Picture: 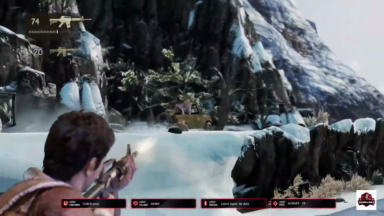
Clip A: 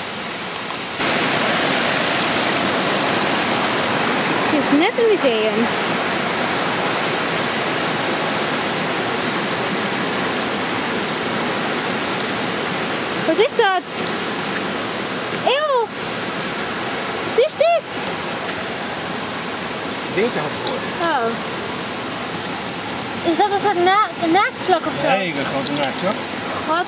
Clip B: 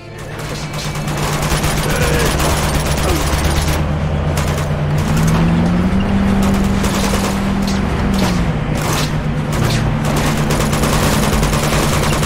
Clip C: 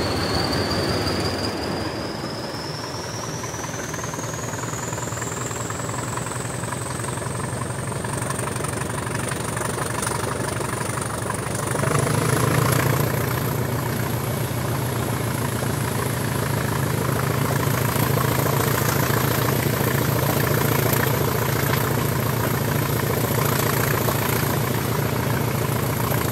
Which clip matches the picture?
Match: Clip B